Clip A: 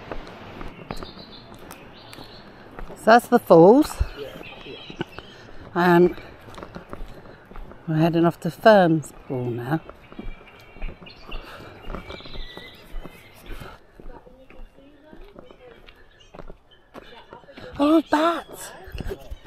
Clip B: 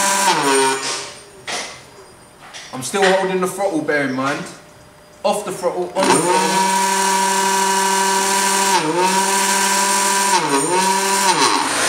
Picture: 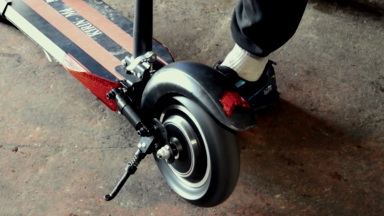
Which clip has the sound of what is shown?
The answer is B